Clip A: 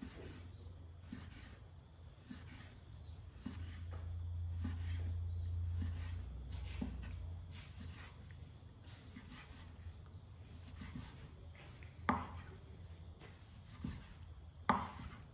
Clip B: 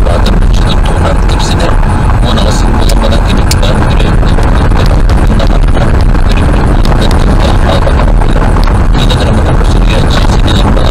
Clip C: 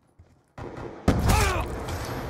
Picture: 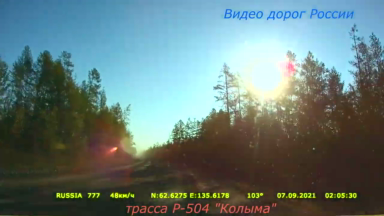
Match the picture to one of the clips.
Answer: B